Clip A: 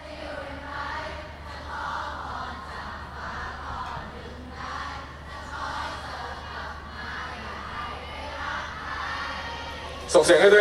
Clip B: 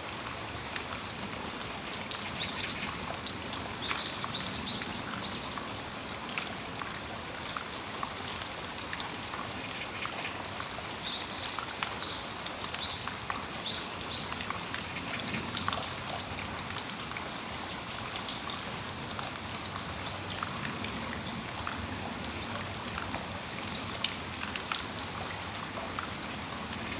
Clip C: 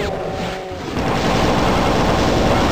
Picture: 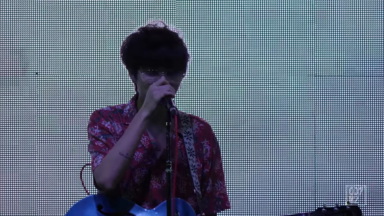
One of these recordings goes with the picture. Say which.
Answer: A